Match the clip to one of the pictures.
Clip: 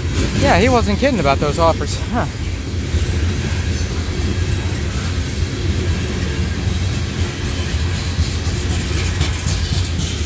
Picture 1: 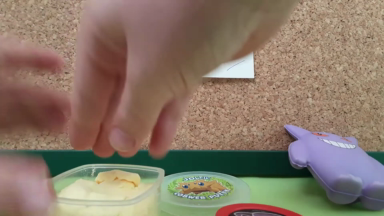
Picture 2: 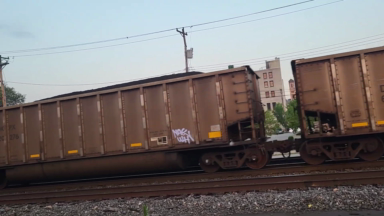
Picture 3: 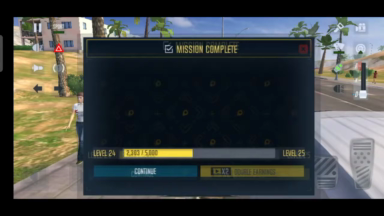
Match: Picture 2